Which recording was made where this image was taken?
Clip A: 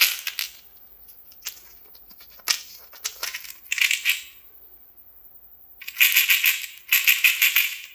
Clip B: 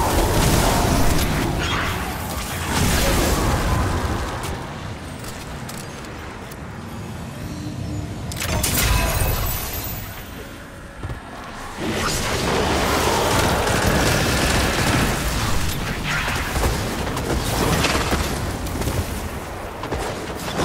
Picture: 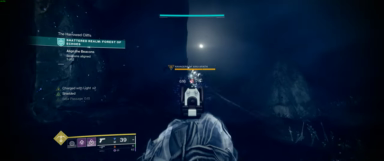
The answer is B